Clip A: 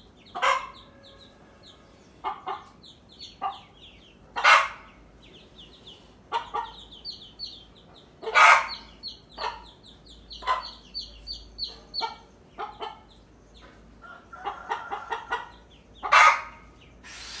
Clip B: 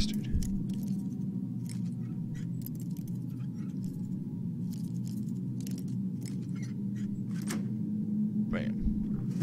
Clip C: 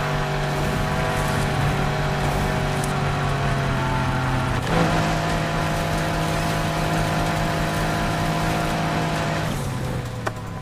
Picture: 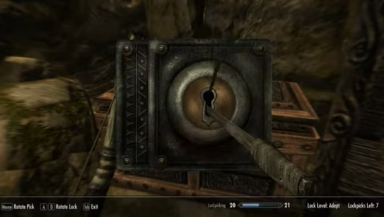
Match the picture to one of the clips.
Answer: B